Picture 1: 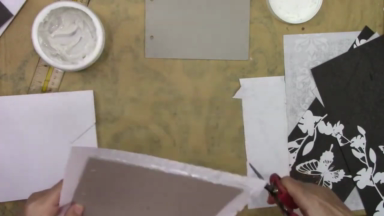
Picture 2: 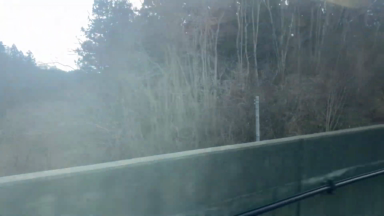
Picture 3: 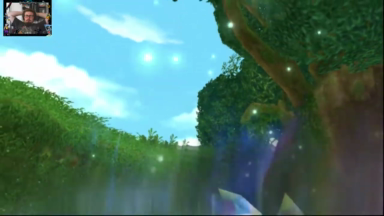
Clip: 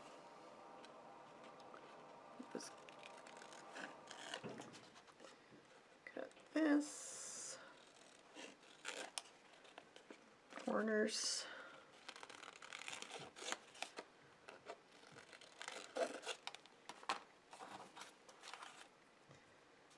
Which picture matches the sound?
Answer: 1